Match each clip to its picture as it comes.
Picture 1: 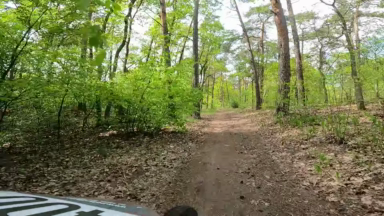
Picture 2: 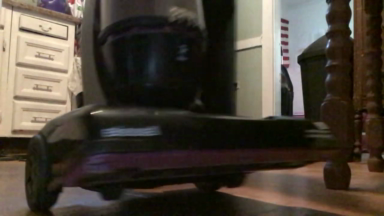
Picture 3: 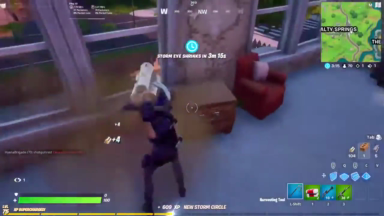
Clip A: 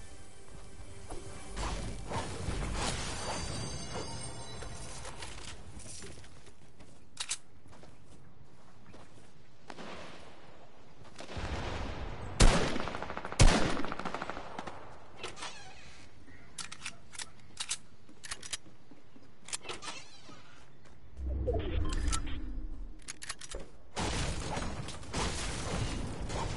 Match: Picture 3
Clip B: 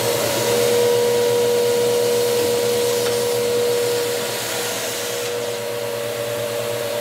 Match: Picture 2